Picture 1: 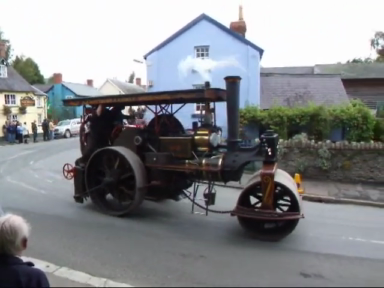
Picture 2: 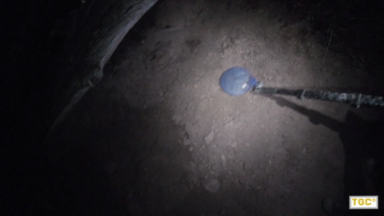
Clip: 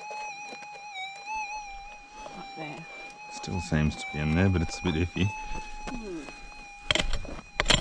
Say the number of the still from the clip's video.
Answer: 2